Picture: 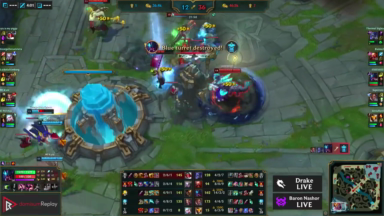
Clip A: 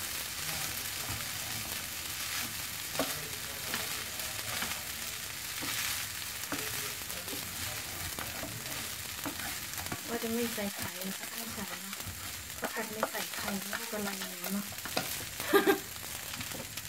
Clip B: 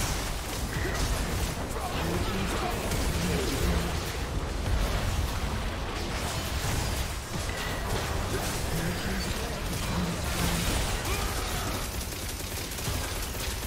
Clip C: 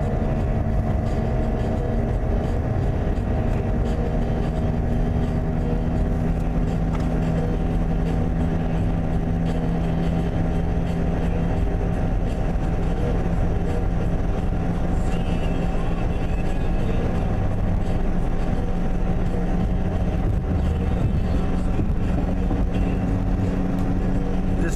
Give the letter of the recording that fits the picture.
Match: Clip B